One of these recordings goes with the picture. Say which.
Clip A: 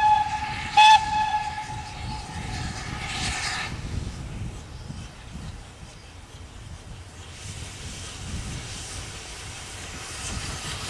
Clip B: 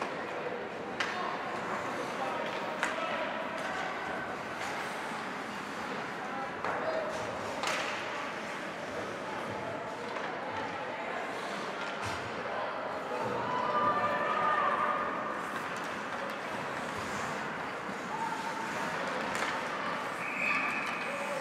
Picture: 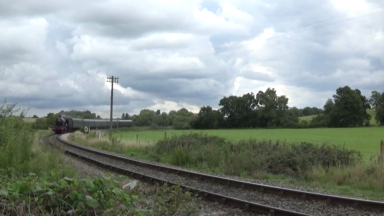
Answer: A